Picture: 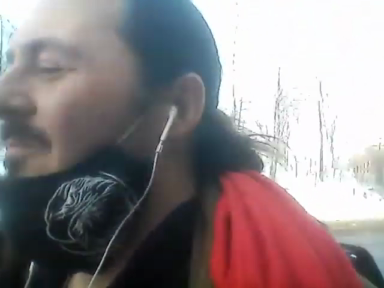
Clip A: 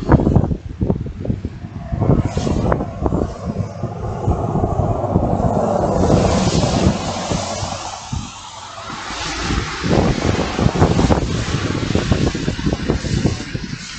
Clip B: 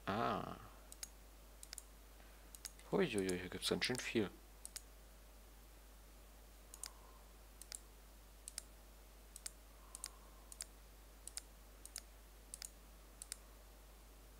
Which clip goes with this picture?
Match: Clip A